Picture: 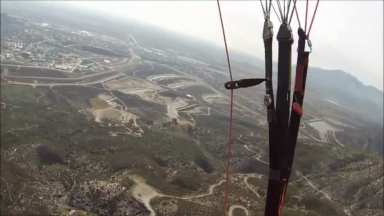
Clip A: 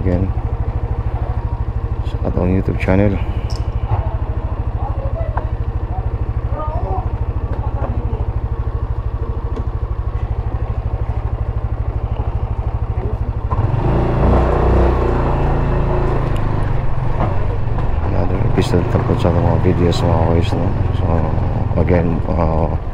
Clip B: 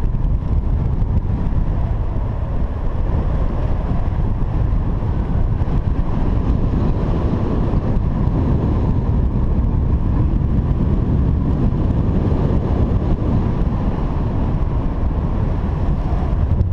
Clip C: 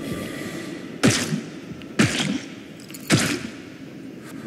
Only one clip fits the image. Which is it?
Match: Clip B